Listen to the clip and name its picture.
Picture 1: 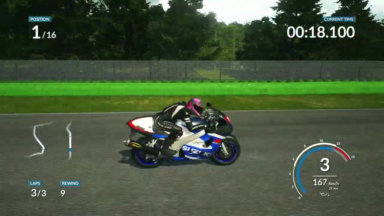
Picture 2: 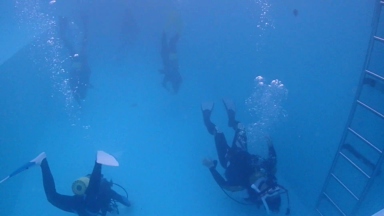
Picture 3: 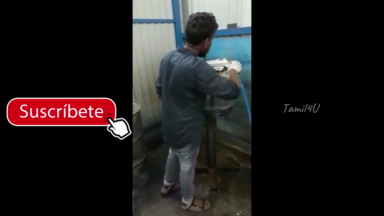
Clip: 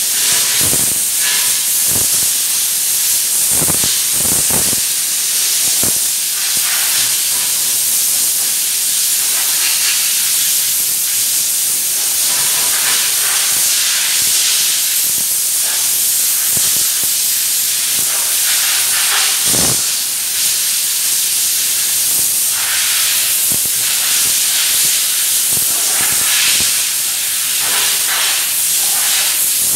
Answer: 3